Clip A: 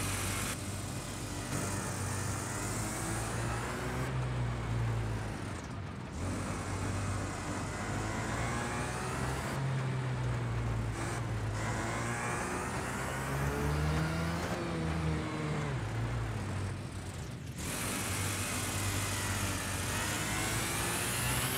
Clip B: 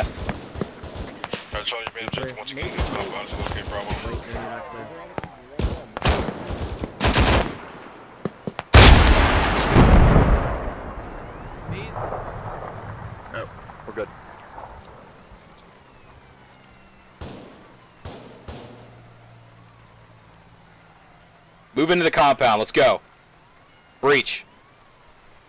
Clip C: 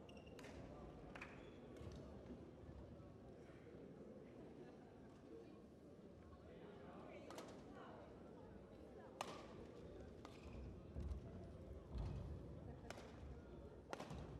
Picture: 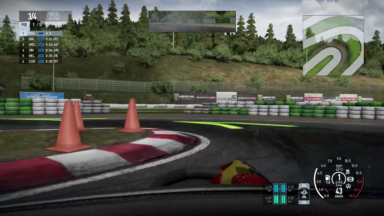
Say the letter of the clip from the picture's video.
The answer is A